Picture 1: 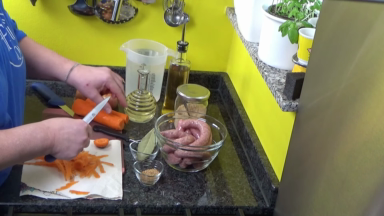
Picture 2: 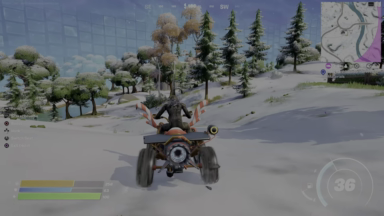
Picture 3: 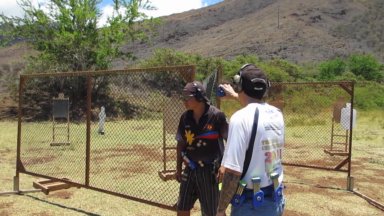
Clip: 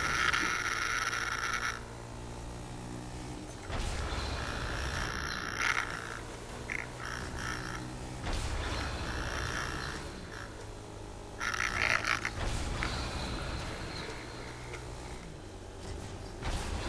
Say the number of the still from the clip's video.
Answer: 2